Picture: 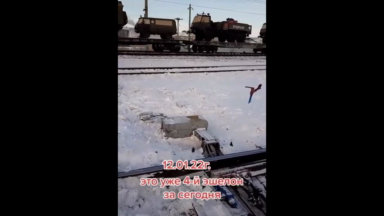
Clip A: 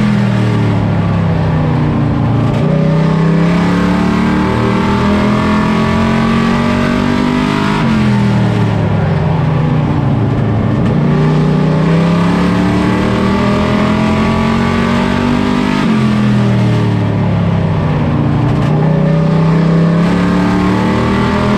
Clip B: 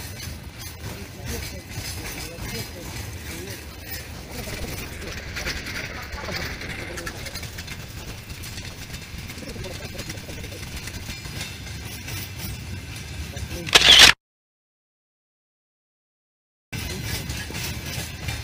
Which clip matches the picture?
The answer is B